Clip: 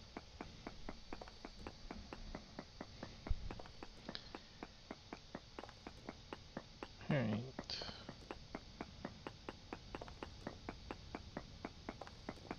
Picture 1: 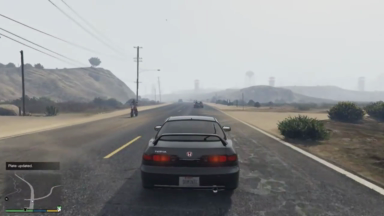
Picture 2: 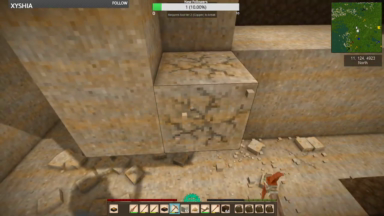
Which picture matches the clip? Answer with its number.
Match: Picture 2